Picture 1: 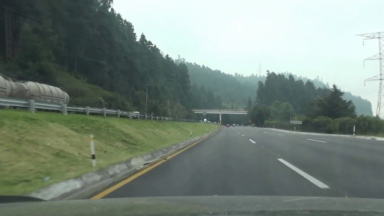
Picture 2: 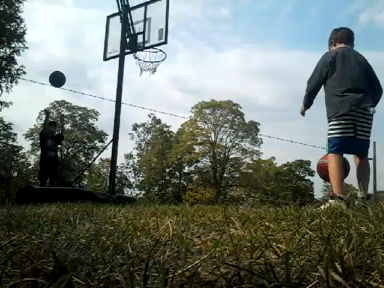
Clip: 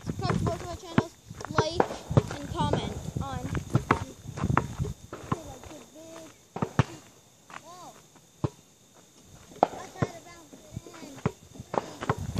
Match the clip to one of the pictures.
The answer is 2